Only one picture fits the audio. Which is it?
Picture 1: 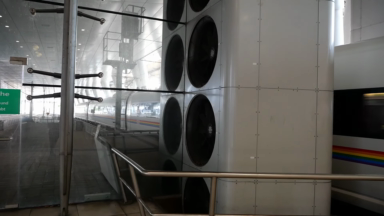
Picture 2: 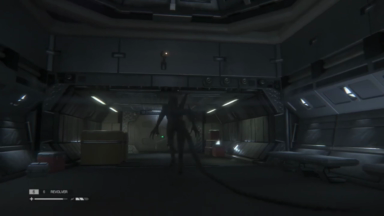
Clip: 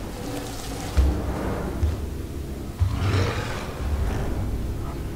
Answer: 2